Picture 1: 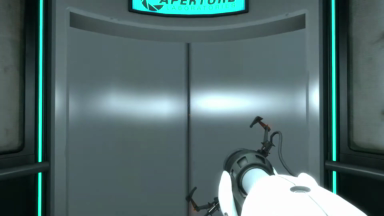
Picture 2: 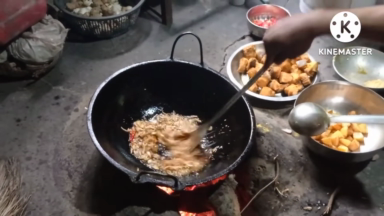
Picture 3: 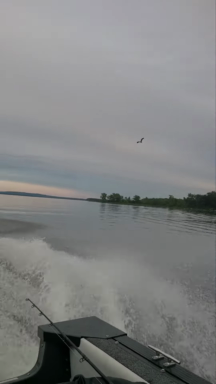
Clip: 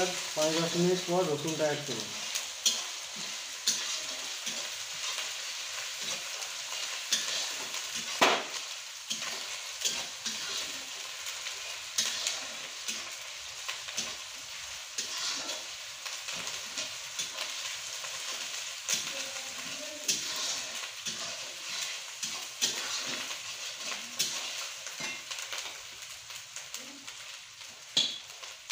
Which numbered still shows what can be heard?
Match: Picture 2